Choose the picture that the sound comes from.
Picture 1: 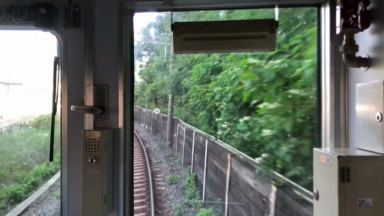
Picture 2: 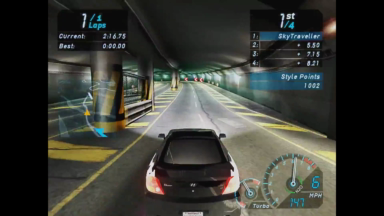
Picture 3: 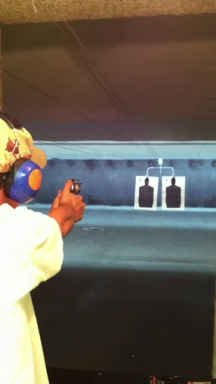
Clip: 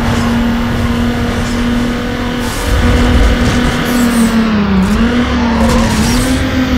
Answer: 2